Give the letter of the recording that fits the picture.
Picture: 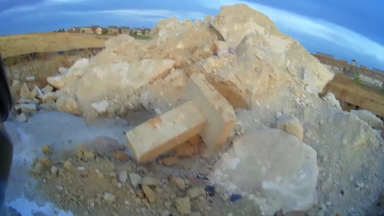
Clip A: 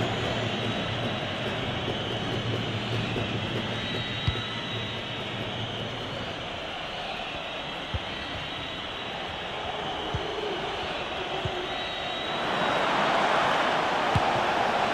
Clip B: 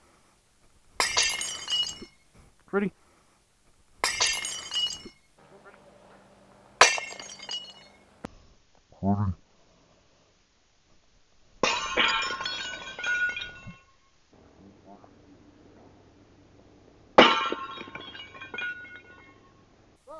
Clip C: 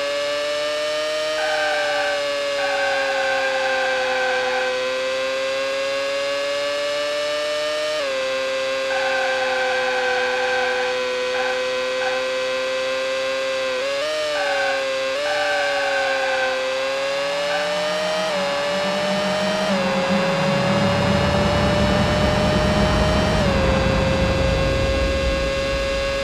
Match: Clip B